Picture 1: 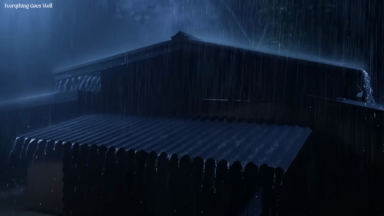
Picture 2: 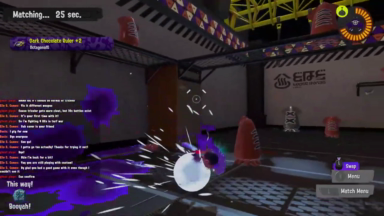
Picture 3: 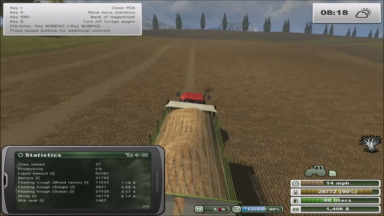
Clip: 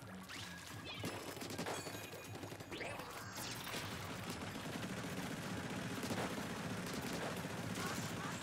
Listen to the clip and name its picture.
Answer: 2